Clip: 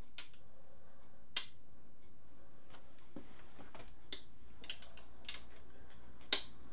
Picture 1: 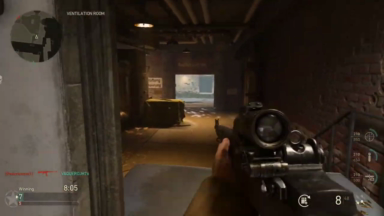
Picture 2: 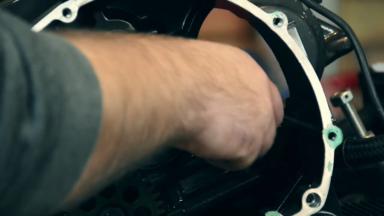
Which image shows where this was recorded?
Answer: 2